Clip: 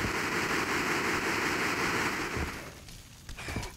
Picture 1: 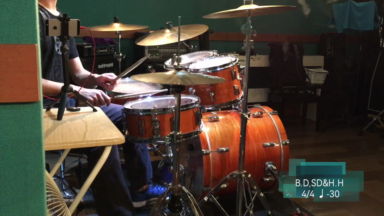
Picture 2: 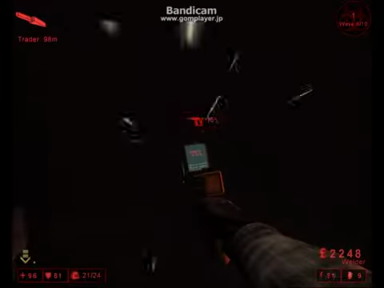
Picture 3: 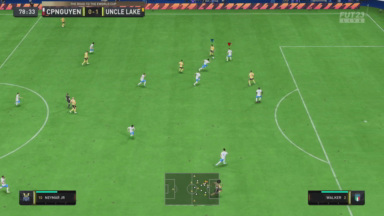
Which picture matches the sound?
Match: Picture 2